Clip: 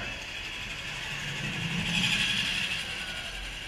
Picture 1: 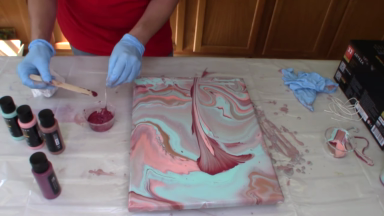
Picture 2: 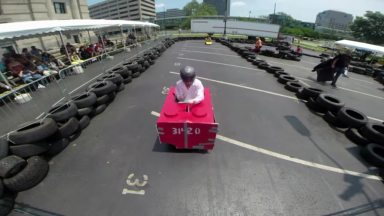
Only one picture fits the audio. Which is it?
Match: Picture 2